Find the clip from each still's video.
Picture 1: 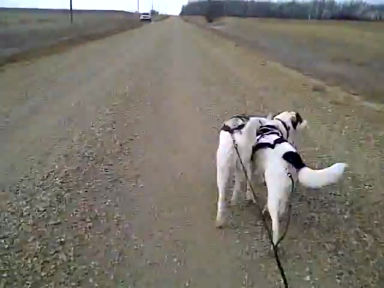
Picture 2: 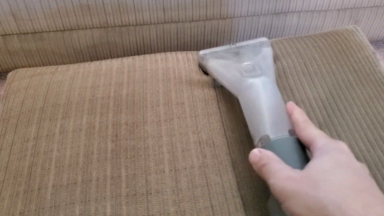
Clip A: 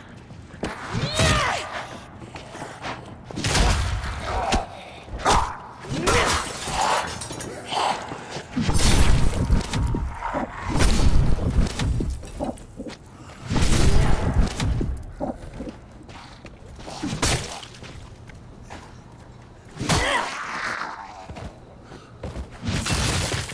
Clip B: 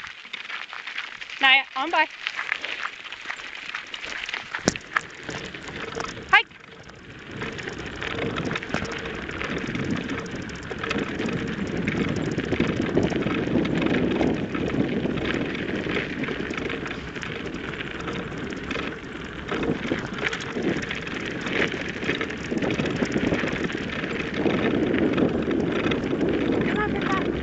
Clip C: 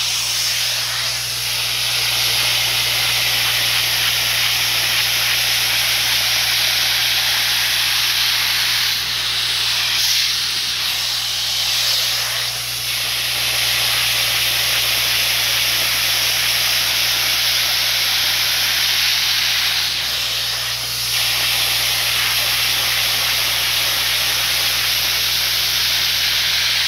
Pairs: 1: B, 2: C